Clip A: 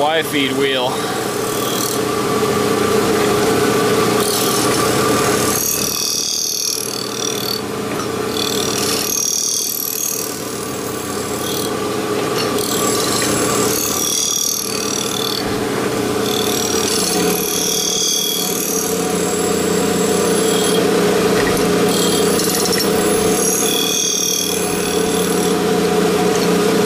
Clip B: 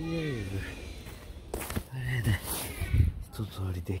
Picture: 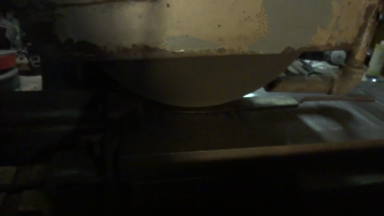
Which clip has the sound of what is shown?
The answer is A